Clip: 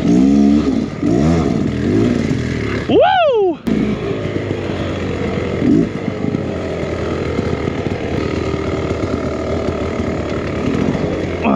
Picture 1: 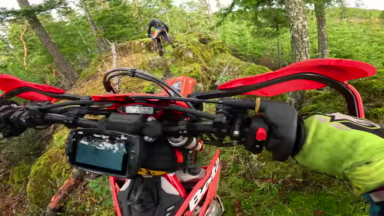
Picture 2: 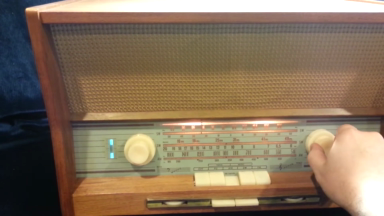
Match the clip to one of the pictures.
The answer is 1